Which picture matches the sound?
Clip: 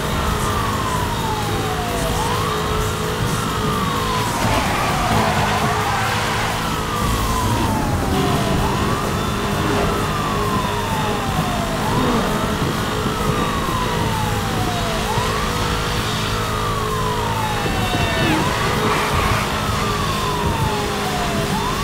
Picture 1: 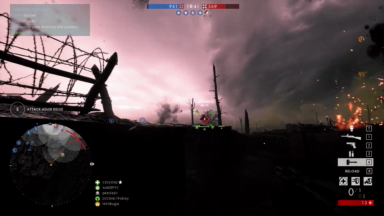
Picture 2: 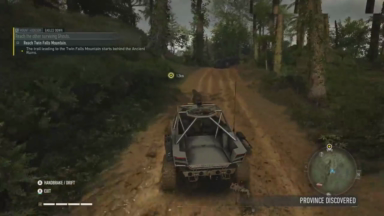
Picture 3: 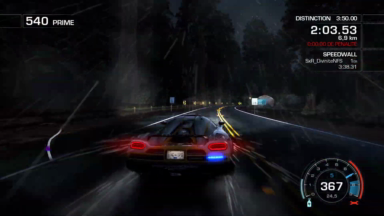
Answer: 3